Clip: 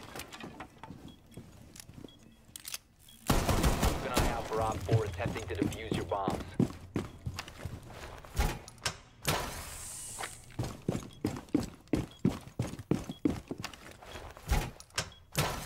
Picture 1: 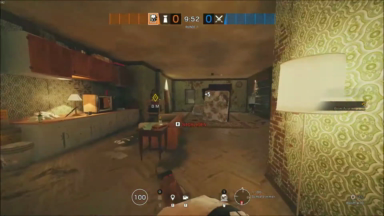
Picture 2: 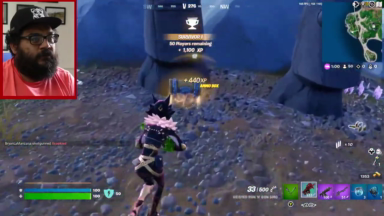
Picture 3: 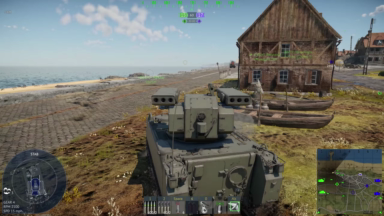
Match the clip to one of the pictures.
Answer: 1